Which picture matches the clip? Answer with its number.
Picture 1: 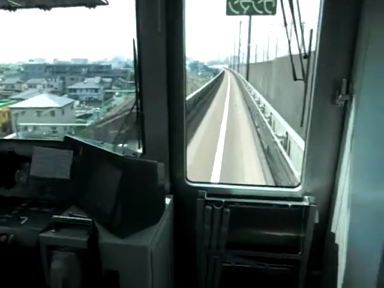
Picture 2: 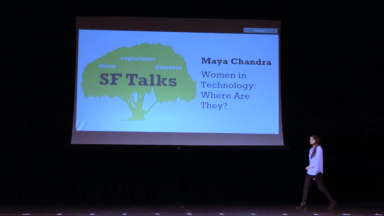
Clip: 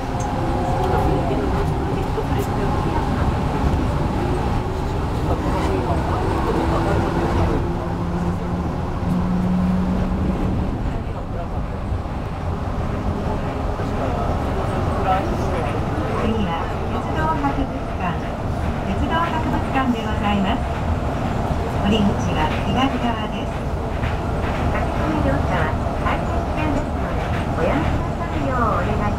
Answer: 1